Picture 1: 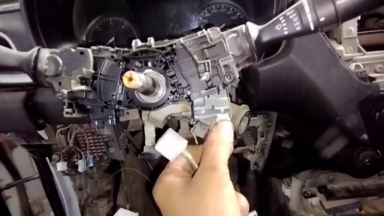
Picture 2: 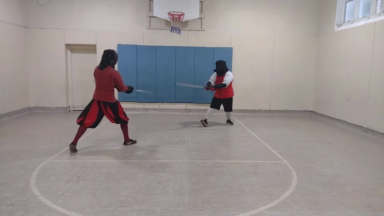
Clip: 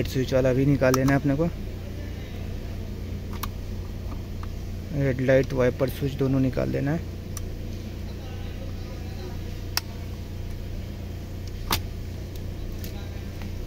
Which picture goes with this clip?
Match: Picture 1